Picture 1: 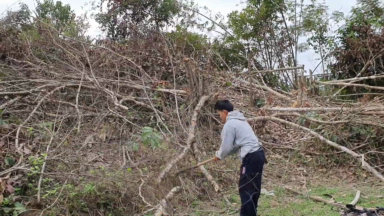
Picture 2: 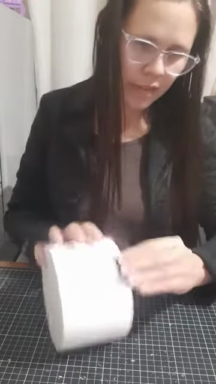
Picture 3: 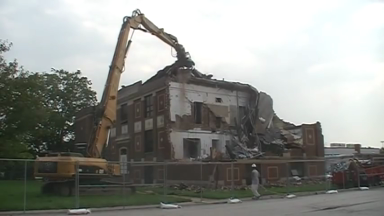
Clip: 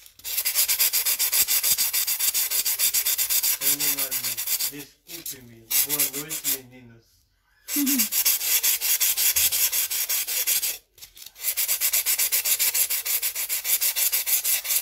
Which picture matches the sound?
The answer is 2